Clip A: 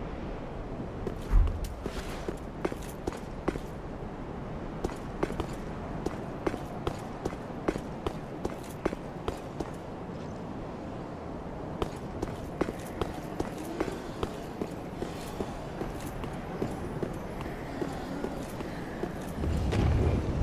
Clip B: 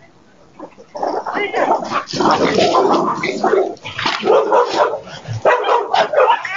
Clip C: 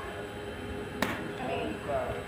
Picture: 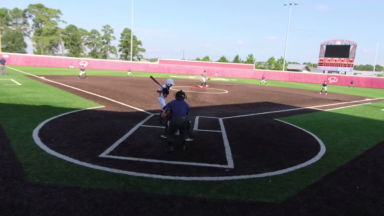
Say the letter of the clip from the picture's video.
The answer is C